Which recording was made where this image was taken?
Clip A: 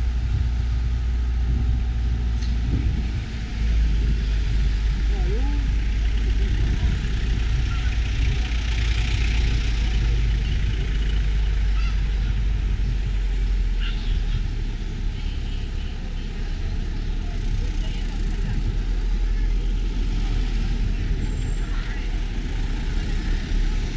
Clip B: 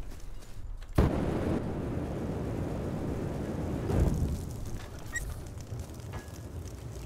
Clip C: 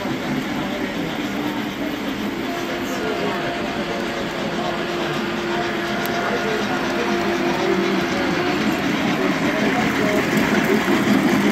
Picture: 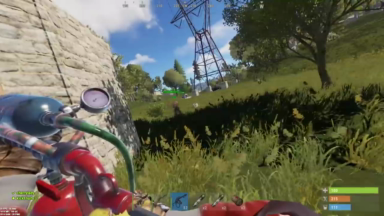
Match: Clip B